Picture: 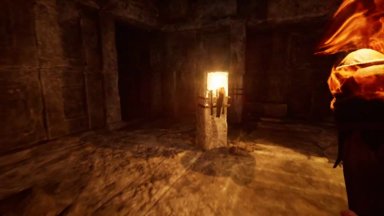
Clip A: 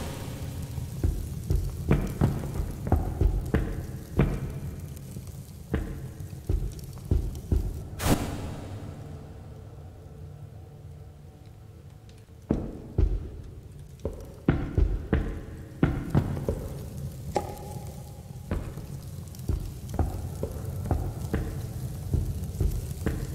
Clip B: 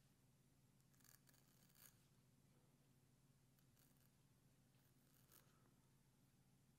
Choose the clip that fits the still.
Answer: A